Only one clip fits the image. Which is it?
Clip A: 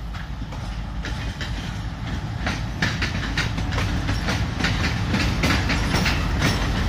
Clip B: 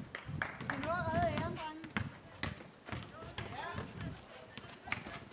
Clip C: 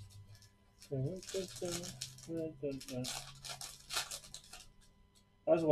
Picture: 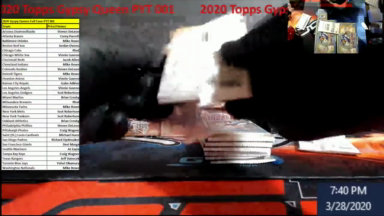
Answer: C